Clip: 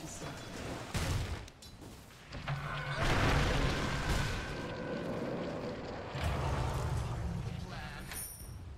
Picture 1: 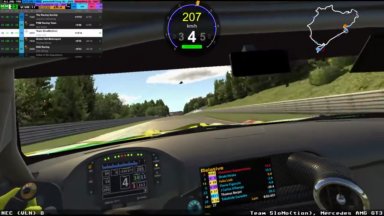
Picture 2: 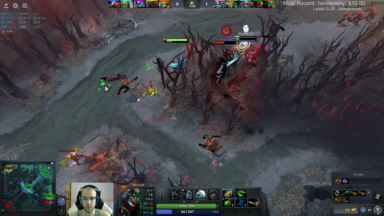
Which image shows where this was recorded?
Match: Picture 2